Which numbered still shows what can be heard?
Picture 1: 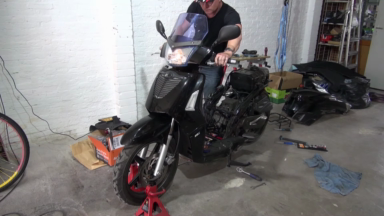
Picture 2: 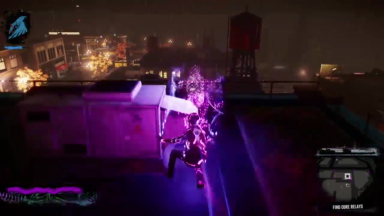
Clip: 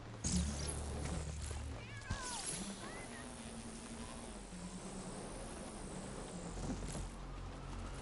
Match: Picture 2